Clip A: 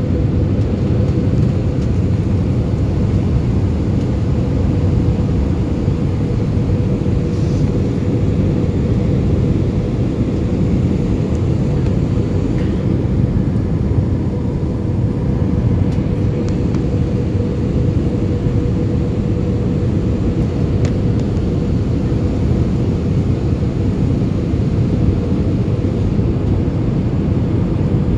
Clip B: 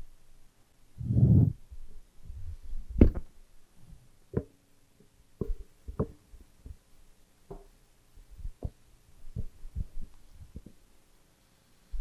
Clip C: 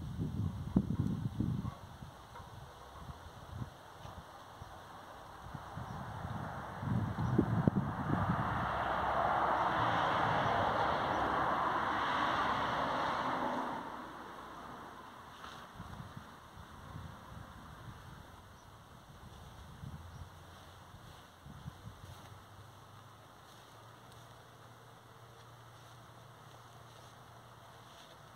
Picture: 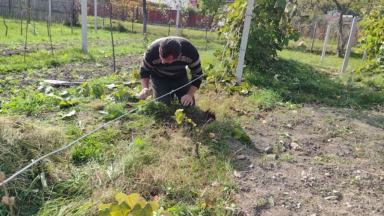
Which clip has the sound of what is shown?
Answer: C